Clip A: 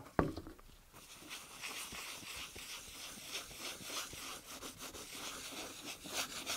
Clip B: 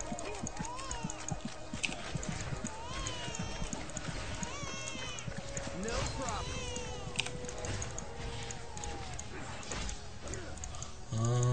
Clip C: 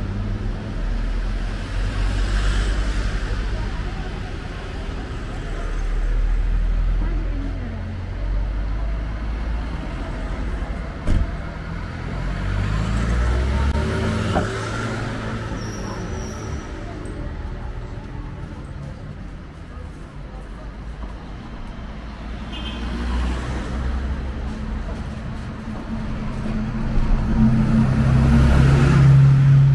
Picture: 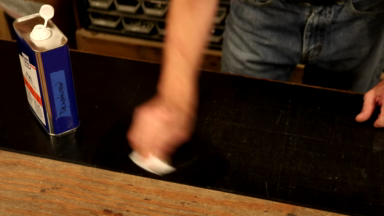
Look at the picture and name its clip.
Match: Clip A